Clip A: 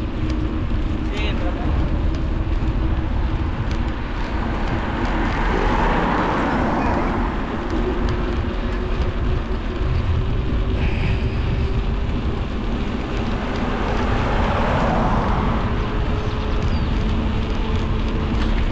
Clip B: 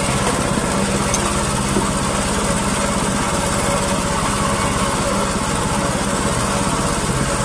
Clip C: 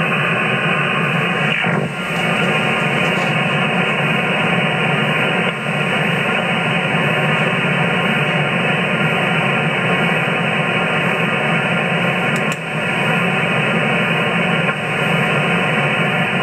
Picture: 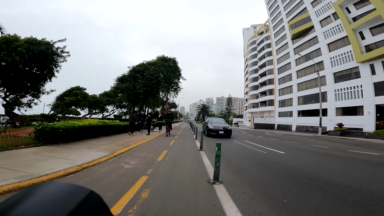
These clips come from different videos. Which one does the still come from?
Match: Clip A